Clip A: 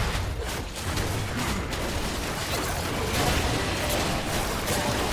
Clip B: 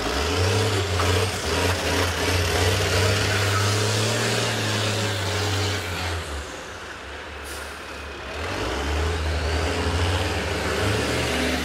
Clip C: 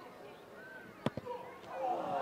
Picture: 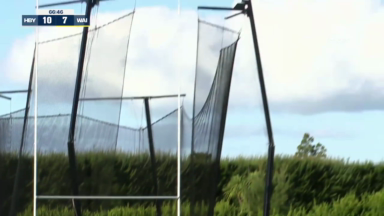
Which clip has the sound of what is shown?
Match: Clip C